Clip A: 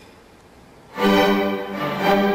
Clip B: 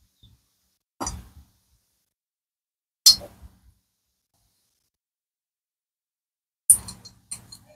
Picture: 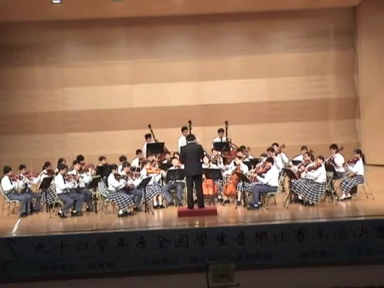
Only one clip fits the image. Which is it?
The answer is A